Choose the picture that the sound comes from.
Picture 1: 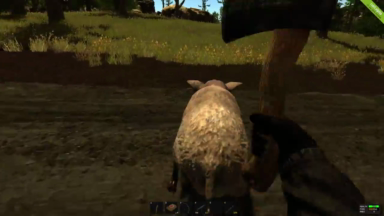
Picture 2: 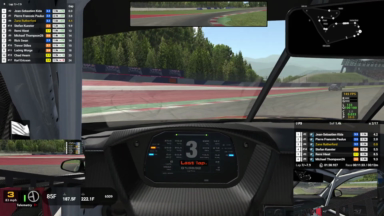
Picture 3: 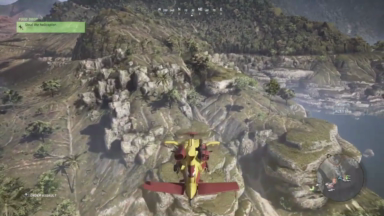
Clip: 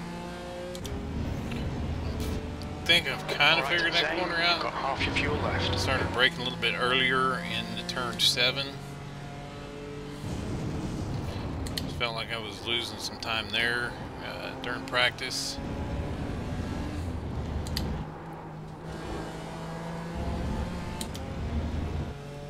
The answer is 2